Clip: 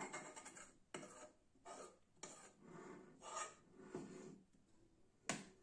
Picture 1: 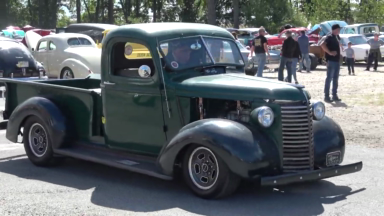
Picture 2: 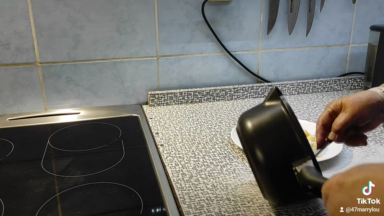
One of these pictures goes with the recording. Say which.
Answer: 2